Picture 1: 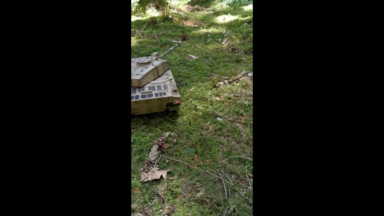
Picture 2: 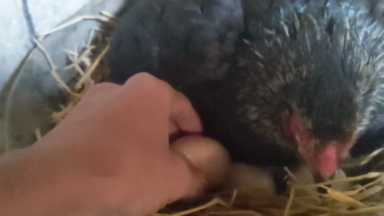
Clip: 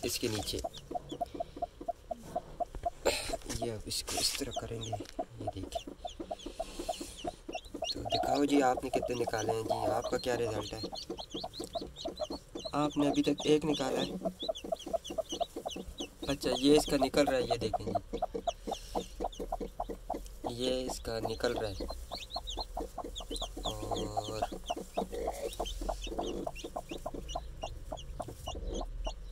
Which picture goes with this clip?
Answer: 2